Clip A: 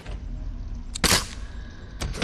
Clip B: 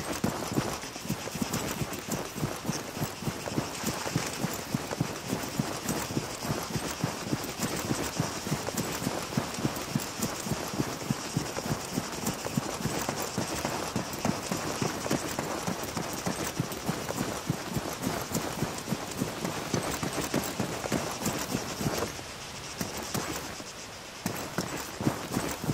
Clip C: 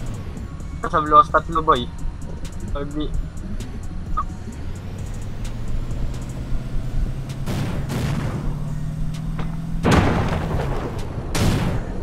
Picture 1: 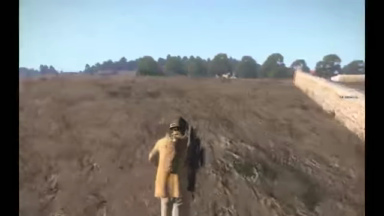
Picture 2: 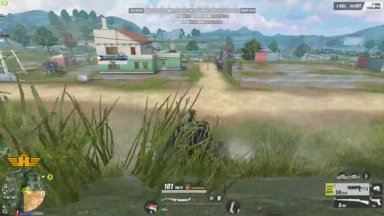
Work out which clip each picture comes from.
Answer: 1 B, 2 C